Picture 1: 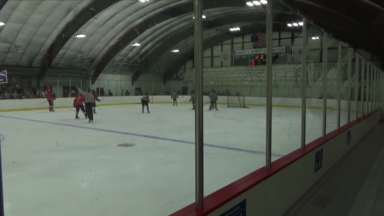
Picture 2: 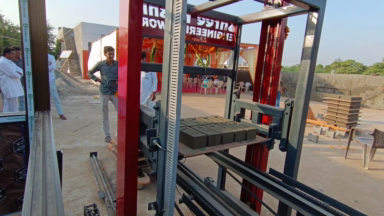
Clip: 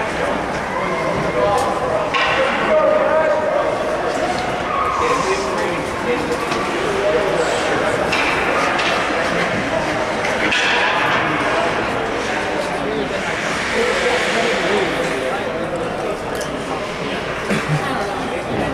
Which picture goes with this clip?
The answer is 1